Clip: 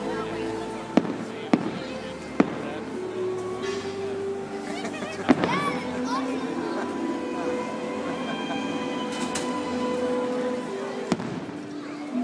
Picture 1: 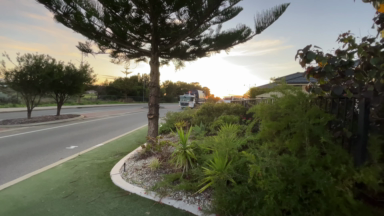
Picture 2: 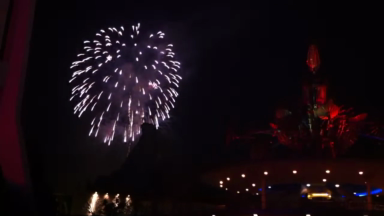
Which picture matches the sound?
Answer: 2